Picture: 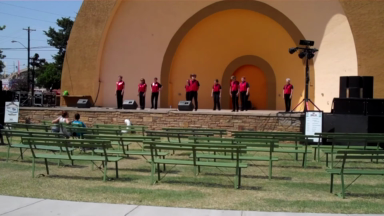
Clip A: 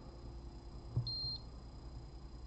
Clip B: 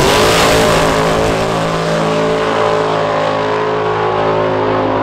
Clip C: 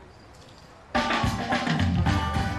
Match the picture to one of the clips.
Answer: C